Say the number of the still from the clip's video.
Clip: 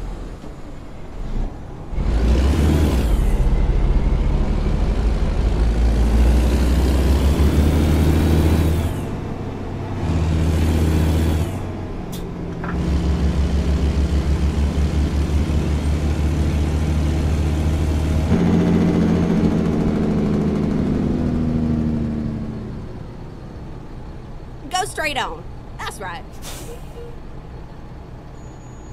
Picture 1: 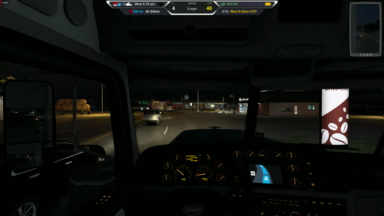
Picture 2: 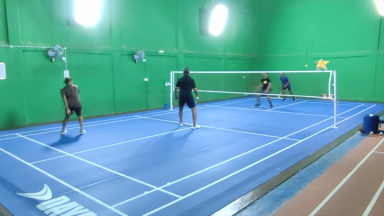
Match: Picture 1